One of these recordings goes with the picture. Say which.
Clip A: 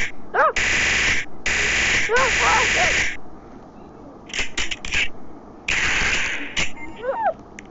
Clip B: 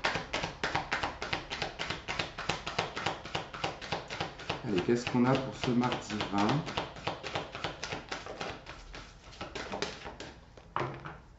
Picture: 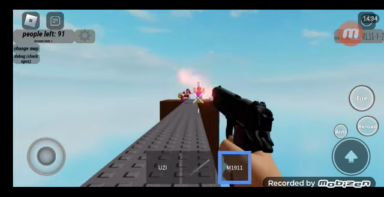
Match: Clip A